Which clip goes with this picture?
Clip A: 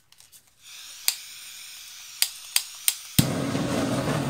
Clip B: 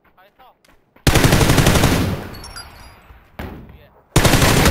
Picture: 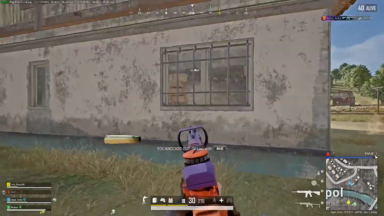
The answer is B